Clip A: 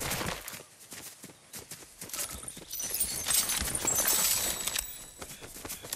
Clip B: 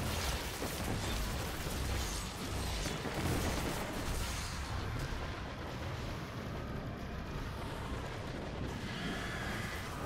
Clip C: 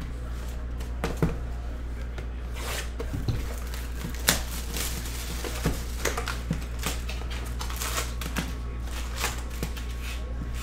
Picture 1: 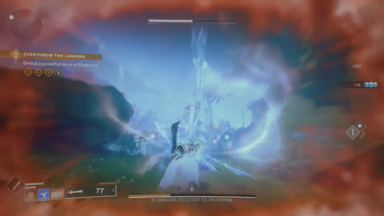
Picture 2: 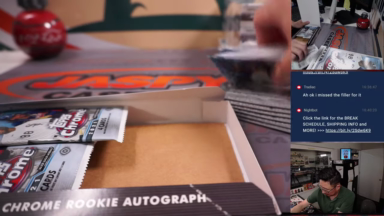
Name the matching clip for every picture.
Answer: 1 B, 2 C